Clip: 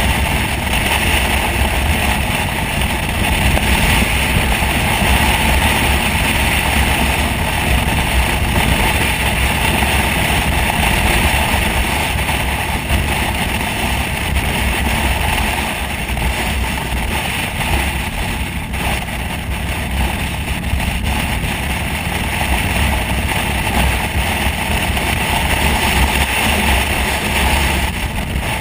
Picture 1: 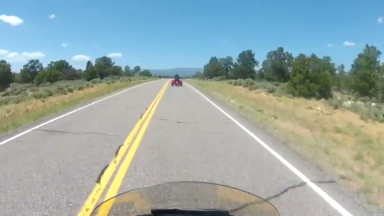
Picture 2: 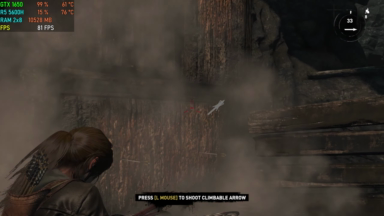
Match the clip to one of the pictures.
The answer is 1